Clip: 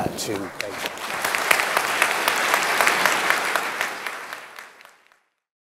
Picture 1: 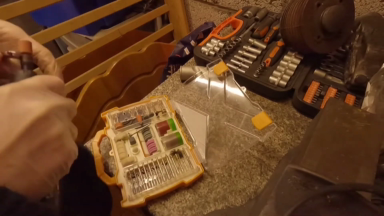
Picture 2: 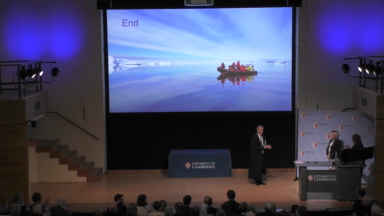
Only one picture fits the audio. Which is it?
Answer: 2